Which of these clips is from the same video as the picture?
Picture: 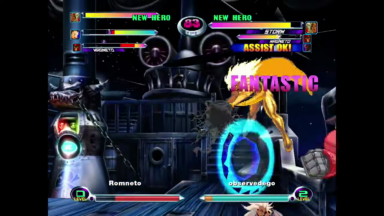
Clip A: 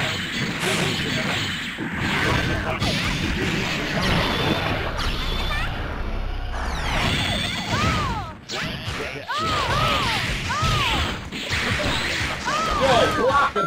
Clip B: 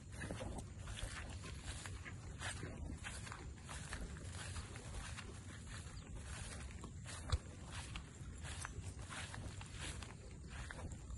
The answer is A